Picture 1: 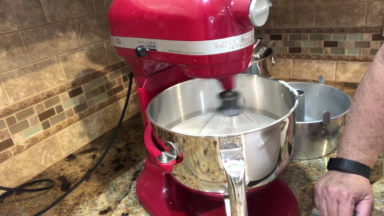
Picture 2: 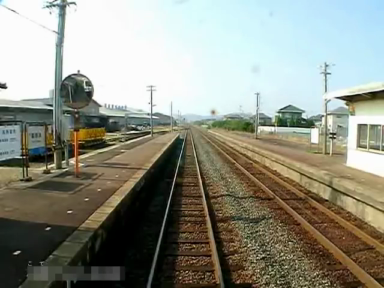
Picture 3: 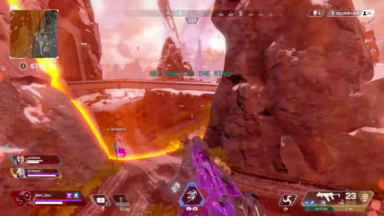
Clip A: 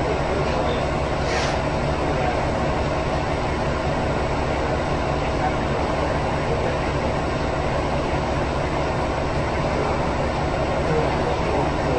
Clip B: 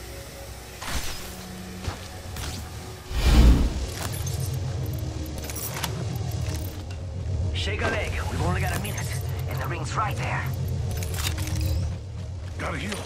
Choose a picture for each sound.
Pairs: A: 2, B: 3